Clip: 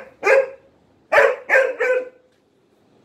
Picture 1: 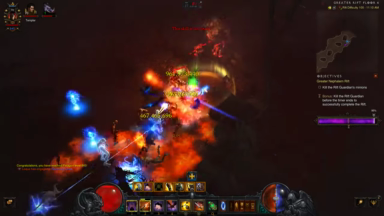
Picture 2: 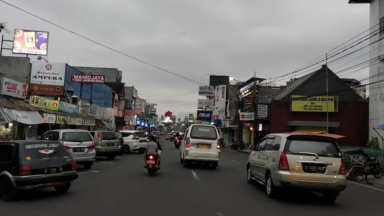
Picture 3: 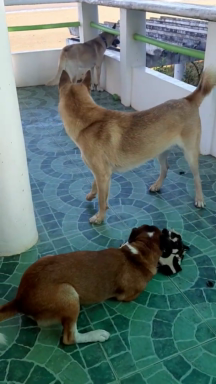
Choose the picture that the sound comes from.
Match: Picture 3